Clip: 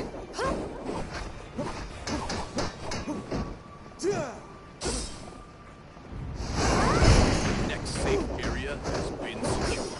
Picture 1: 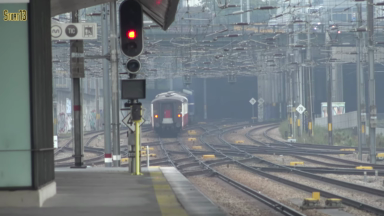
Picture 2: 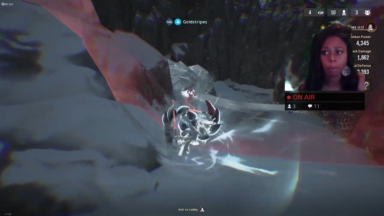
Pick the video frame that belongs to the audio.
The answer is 2